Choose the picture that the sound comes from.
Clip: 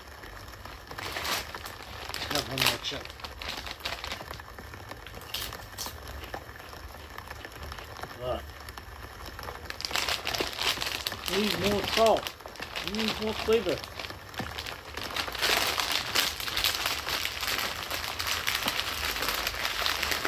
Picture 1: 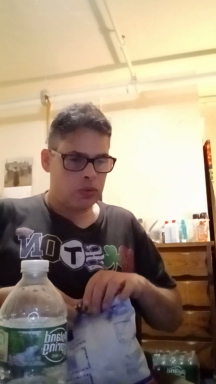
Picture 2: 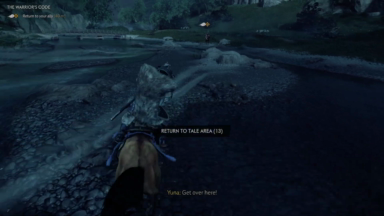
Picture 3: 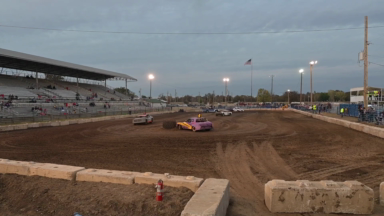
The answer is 1